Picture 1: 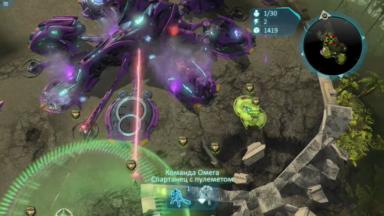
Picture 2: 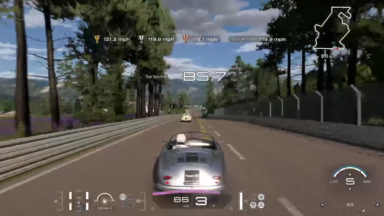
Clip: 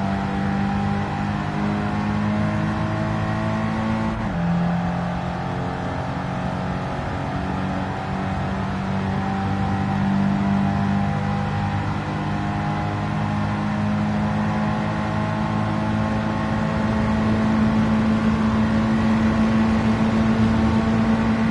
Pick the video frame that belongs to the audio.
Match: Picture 2